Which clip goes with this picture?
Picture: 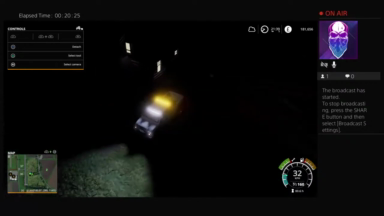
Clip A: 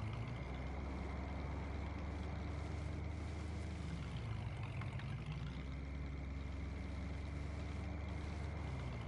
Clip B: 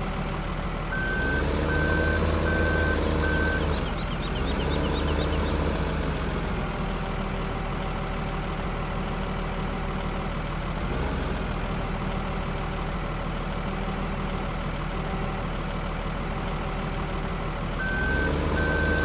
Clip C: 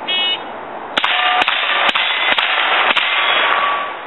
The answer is A